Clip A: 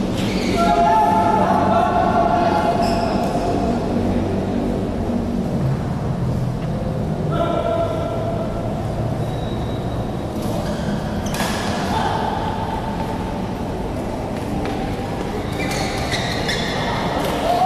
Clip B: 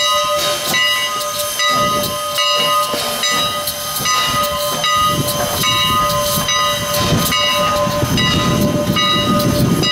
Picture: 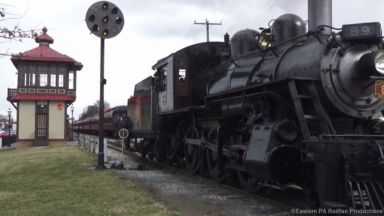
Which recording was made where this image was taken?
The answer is B